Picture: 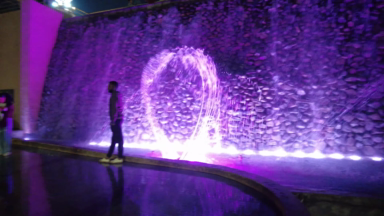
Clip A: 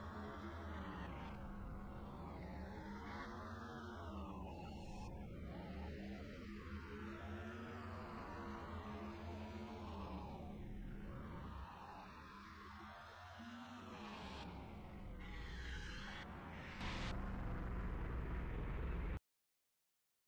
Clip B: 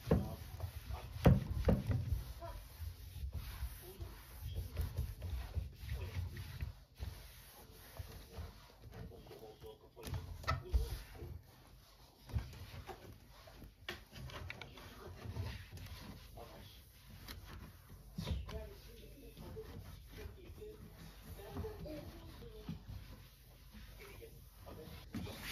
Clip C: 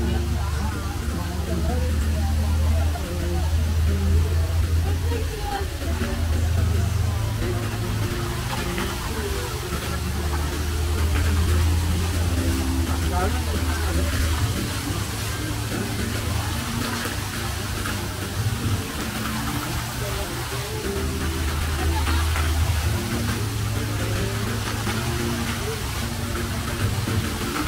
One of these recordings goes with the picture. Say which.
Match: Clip C